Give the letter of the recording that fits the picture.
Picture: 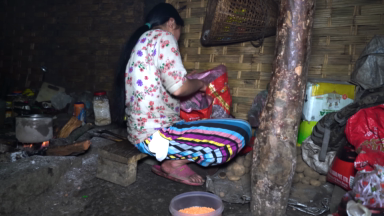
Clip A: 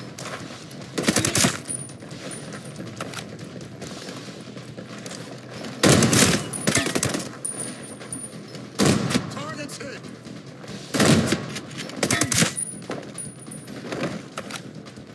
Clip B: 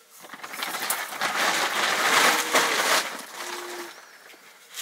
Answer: B